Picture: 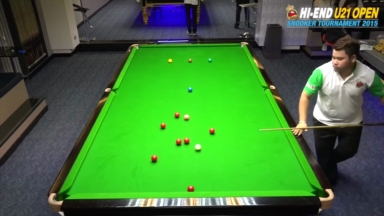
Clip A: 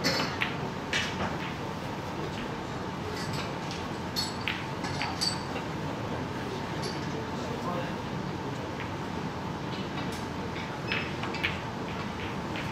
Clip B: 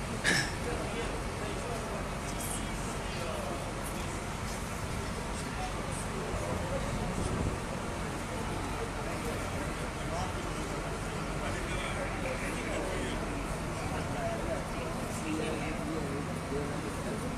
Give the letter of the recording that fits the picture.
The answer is A